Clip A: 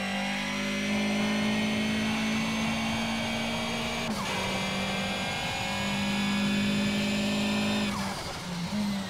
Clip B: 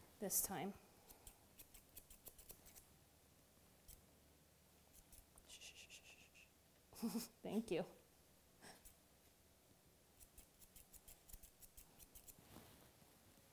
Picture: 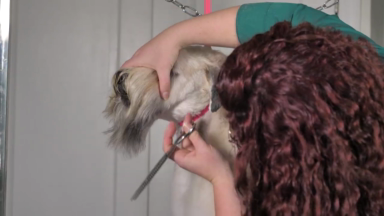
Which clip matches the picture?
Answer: B